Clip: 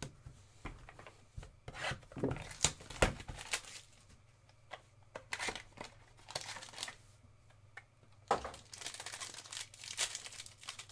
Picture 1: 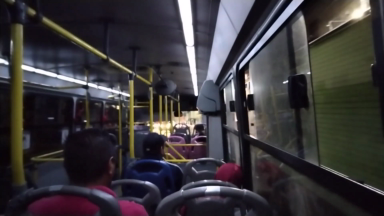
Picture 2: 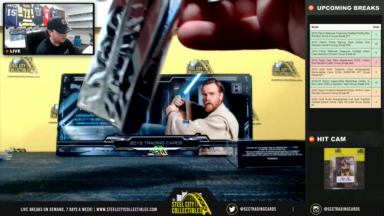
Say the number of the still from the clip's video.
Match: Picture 2